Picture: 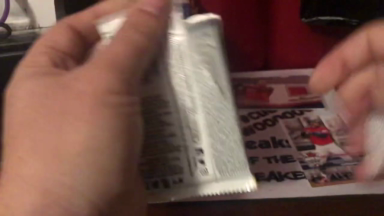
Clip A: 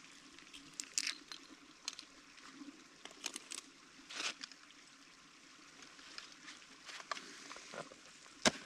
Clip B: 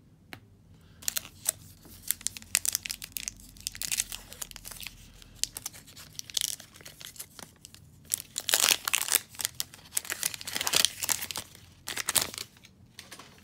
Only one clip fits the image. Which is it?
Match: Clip B